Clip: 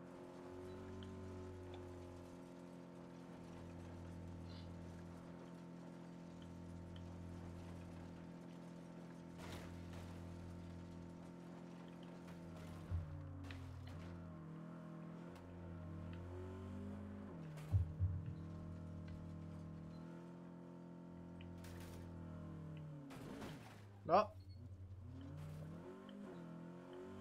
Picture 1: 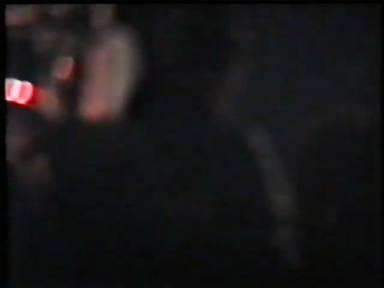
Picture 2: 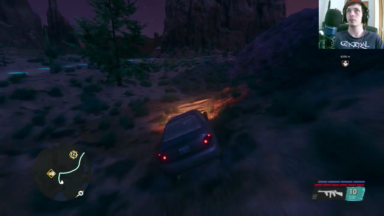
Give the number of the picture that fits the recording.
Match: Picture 2